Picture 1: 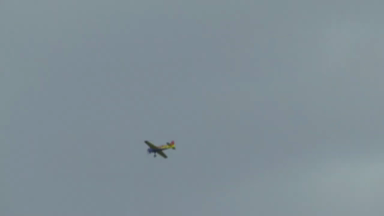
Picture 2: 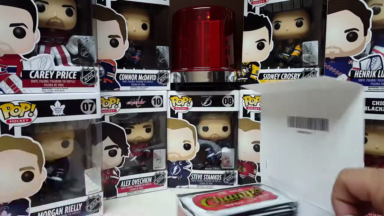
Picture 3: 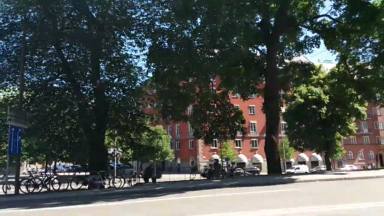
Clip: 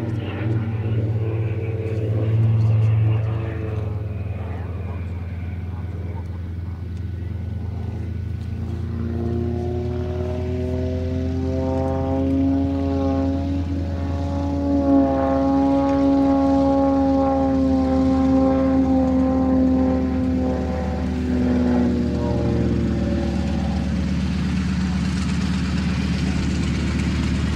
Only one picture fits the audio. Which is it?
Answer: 1